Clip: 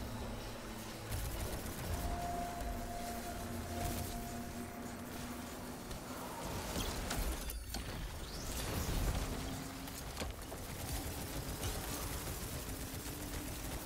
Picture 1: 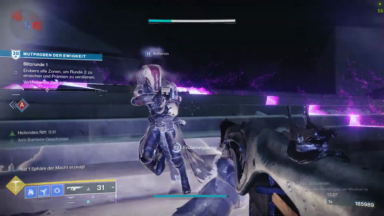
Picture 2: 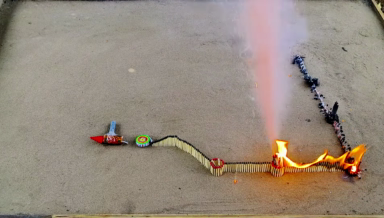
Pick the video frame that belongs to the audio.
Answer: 1